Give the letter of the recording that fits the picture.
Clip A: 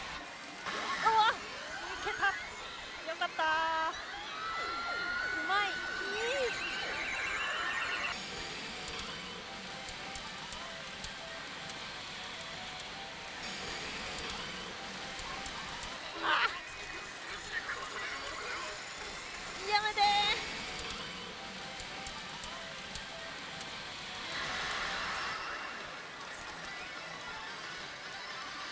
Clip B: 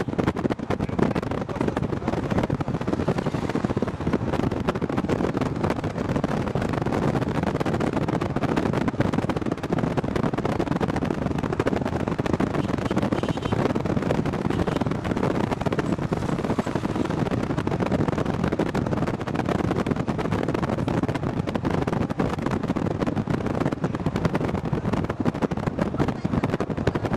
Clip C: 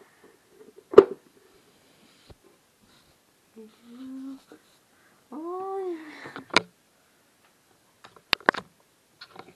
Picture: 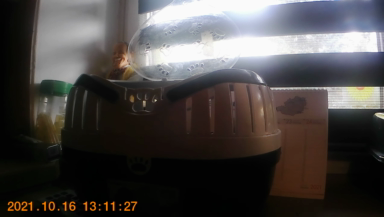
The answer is C